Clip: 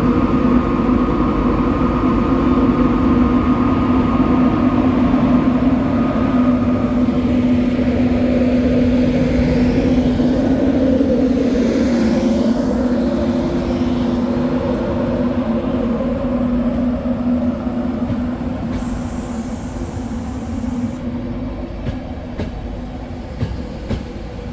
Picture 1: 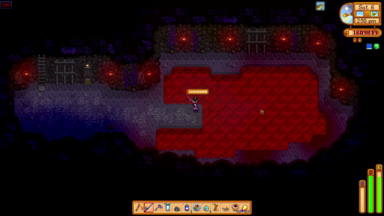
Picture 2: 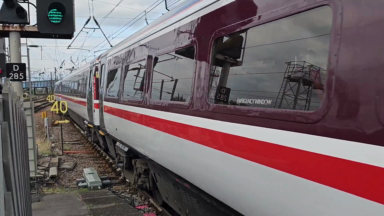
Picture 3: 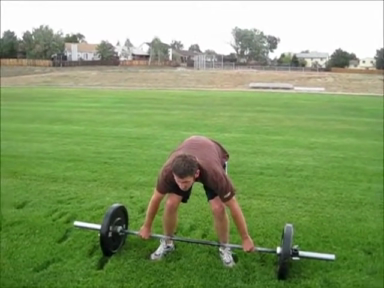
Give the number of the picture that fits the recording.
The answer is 2